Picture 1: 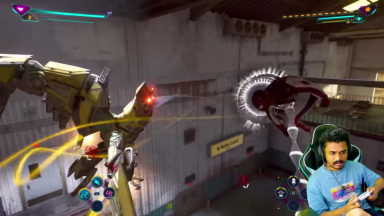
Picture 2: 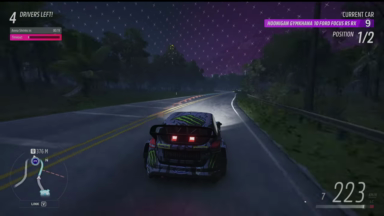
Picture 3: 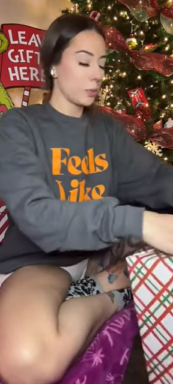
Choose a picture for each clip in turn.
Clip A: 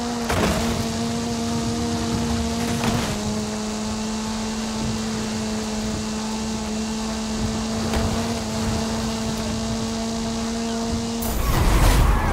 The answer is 2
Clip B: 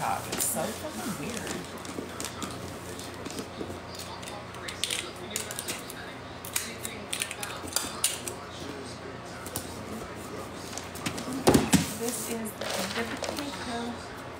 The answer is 3